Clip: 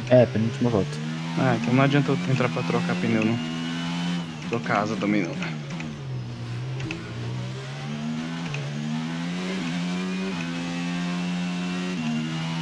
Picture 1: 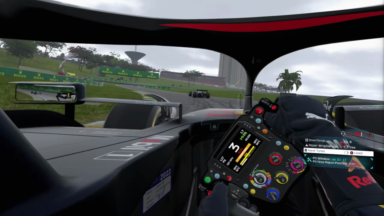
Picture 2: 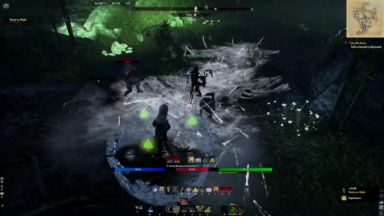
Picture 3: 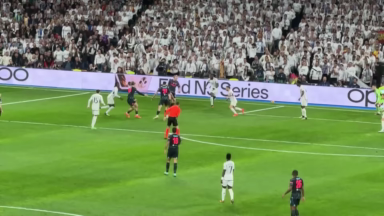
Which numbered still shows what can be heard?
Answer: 1